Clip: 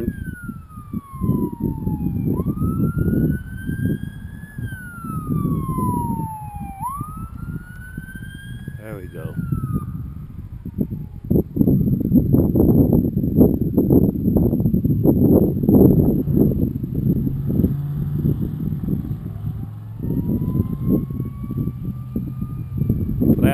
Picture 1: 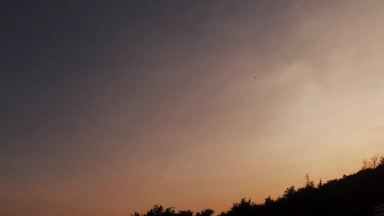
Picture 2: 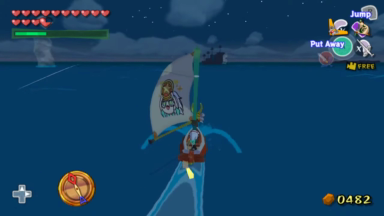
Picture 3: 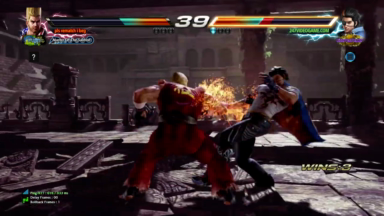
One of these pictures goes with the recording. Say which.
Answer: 1